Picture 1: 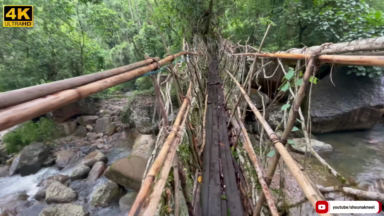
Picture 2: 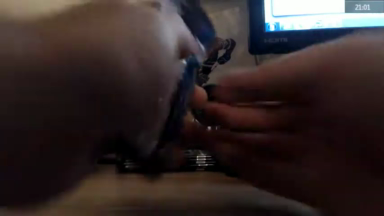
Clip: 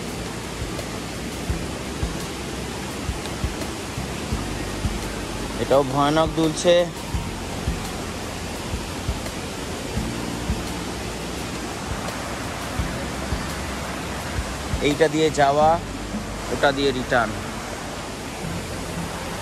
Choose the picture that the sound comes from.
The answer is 1